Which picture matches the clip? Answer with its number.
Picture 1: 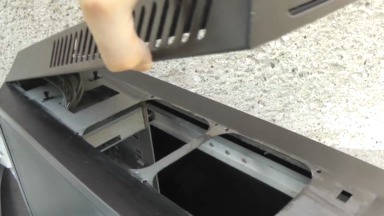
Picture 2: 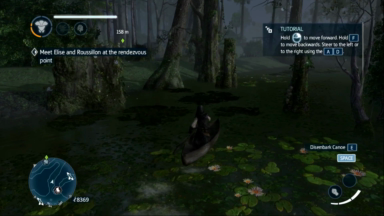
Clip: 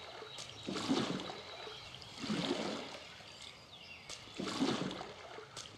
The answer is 2